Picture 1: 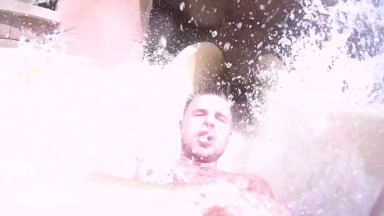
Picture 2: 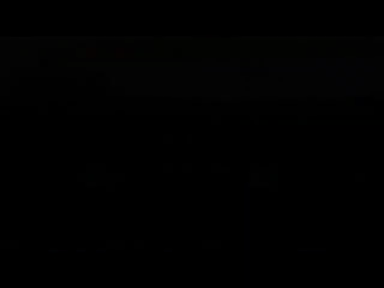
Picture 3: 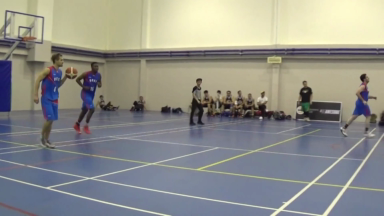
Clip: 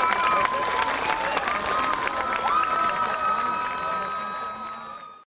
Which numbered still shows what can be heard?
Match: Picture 2